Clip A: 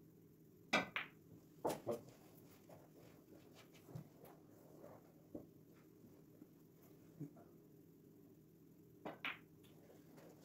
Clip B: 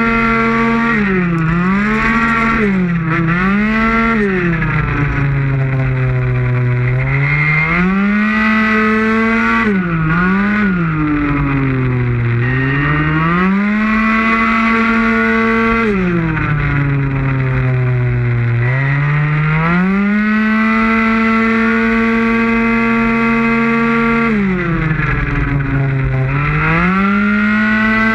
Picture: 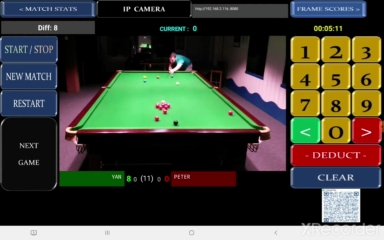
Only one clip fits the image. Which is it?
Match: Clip A